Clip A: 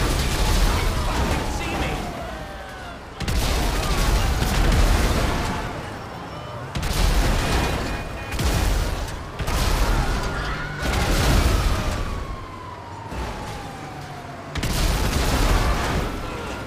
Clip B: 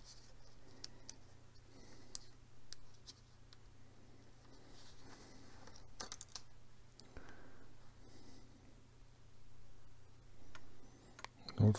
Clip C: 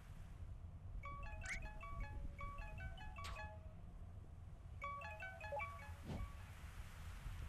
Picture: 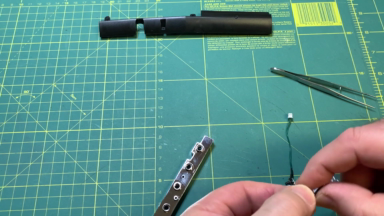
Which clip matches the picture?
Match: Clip B